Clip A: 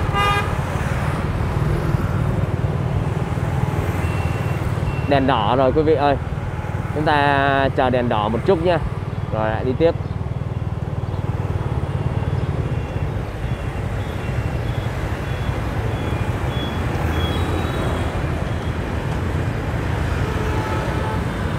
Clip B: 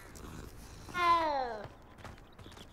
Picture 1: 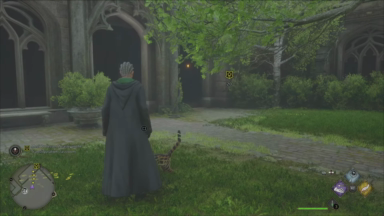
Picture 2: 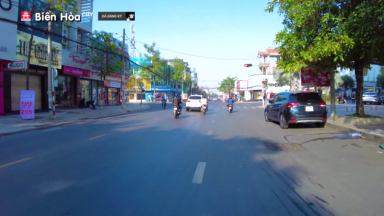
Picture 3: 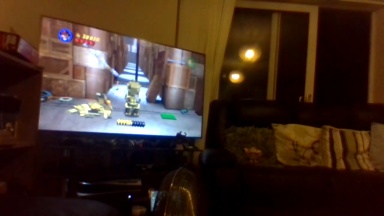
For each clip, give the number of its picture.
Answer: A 2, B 1